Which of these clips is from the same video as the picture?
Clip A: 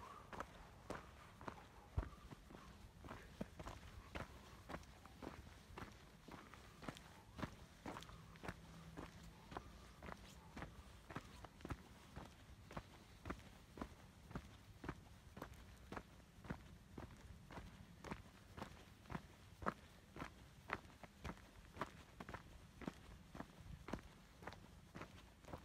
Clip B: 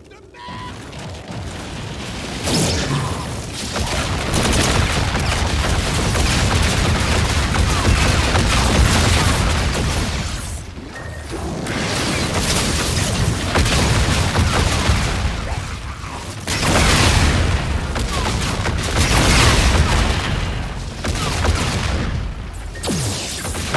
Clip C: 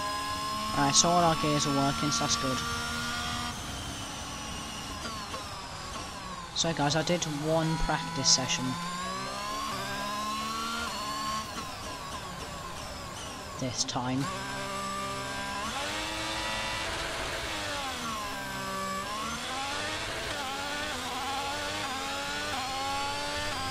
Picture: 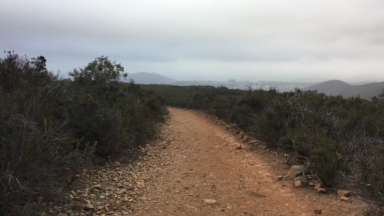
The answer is A